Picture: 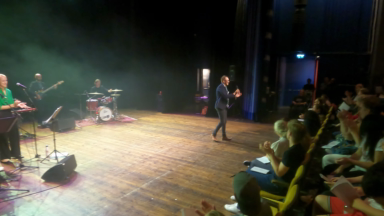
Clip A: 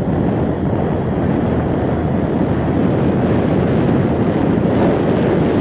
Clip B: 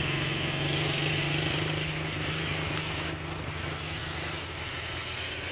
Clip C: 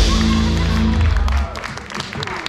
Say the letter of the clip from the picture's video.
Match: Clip C